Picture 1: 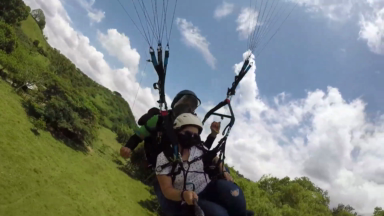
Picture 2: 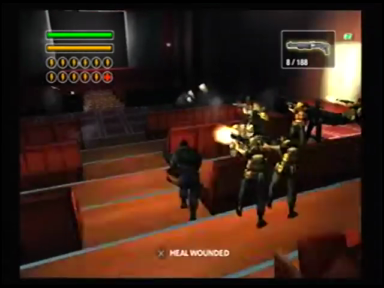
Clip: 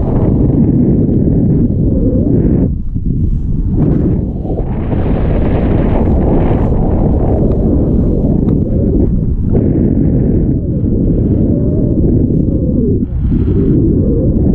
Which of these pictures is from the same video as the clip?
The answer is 1